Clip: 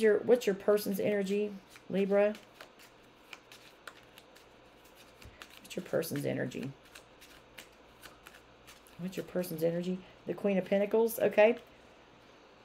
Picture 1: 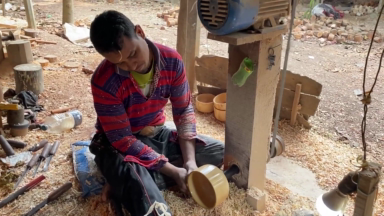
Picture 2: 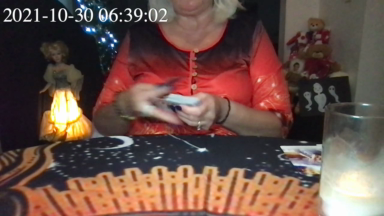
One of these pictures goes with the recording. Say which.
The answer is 2